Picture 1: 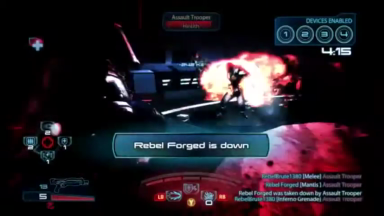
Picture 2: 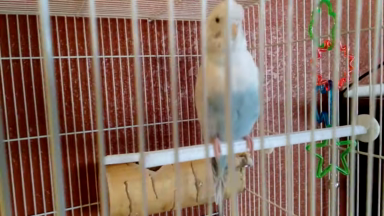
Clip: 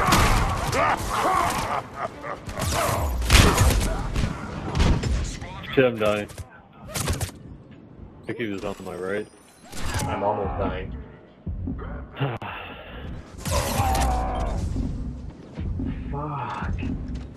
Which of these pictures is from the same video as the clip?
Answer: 1